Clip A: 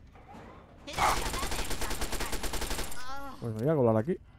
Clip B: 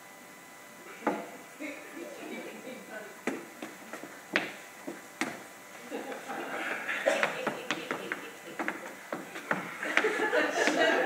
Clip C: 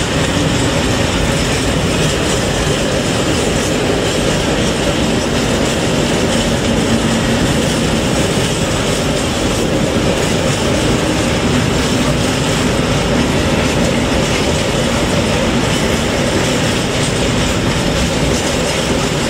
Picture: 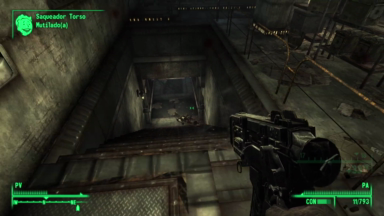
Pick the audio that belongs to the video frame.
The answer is A